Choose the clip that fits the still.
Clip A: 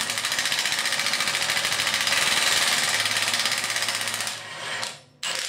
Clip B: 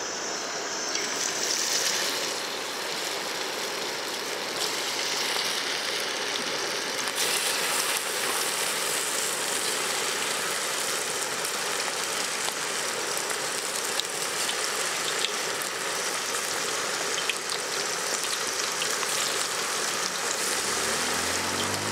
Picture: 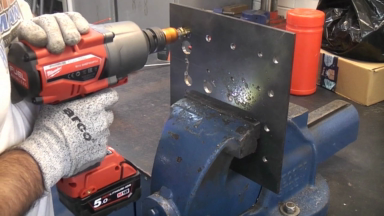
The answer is A